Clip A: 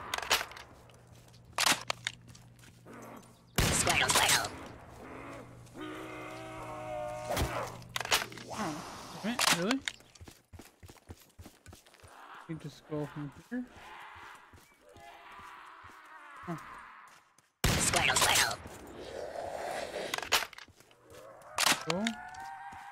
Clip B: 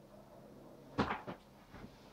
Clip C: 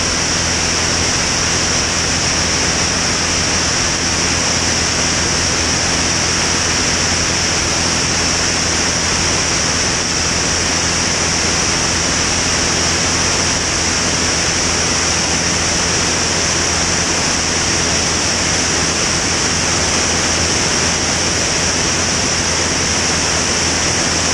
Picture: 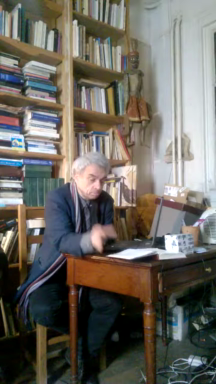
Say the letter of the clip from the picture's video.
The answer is B